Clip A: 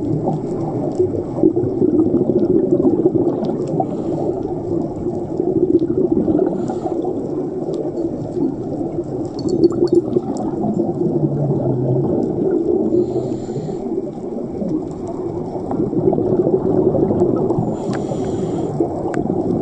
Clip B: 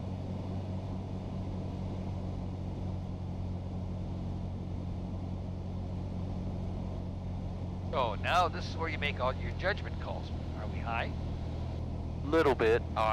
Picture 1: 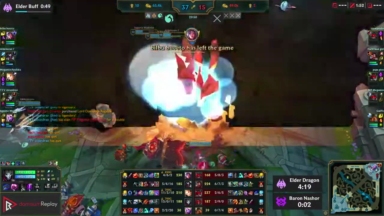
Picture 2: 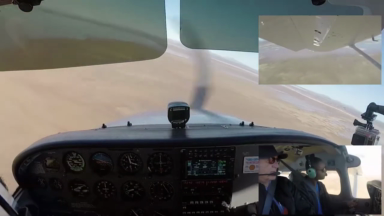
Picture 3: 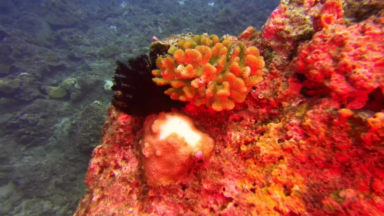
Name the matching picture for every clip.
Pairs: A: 3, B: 2